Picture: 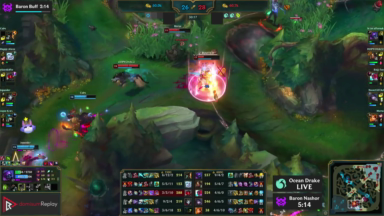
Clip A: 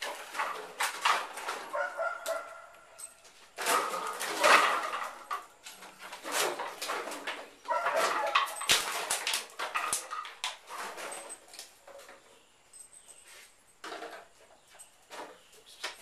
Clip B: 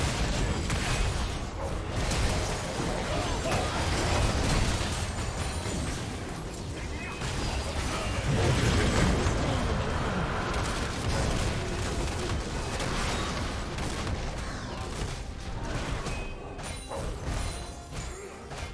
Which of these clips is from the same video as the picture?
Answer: B